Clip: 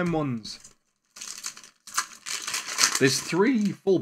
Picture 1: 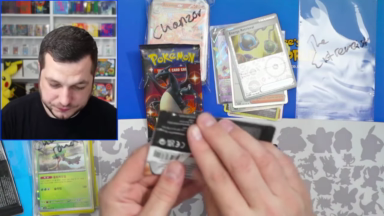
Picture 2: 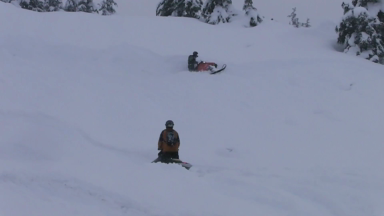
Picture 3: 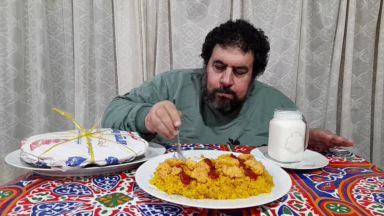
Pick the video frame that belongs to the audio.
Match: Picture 1